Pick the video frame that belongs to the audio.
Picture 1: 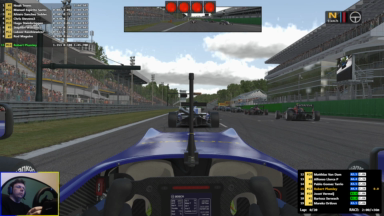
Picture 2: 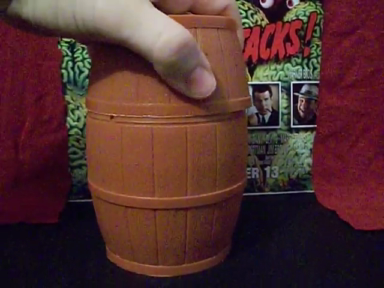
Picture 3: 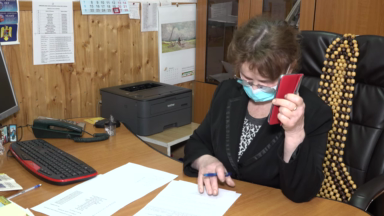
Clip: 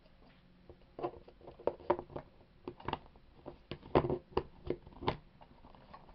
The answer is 2